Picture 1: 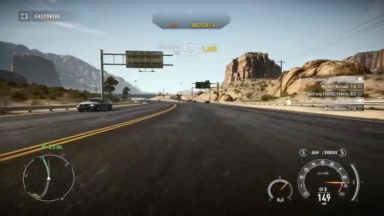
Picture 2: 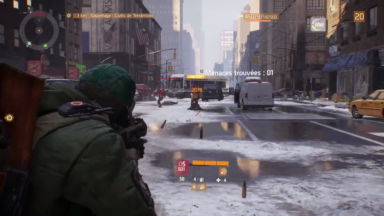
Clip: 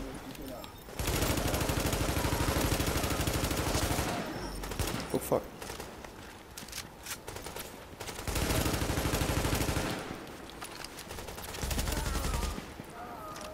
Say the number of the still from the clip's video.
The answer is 2